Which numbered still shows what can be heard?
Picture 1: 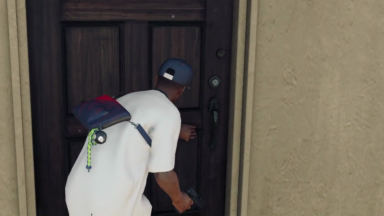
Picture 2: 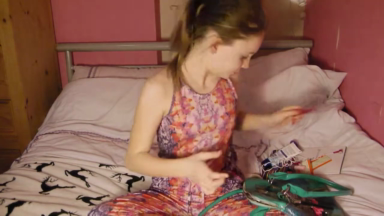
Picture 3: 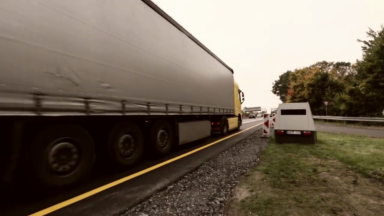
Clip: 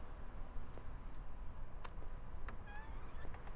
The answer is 1